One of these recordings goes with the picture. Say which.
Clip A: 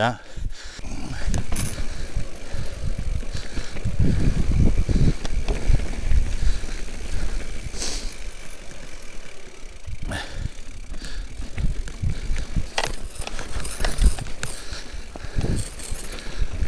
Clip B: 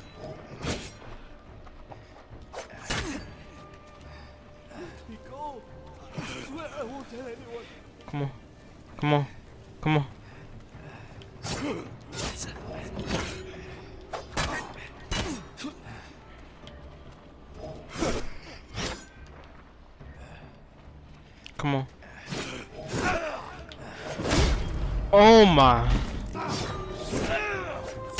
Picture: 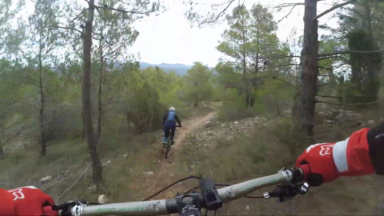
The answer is A